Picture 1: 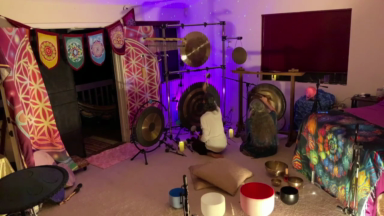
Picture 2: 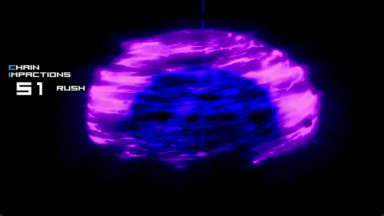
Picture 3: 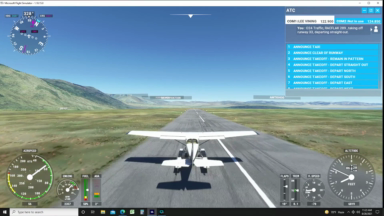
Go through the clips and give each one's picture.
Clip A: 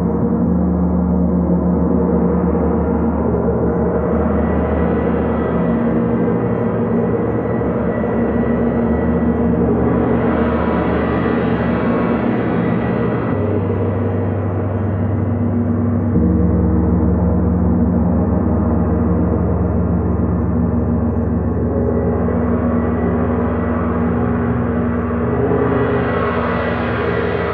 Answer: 1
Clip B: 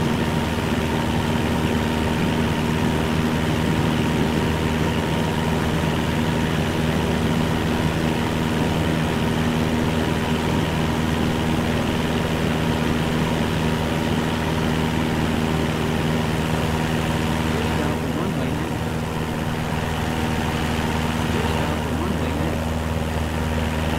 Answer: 3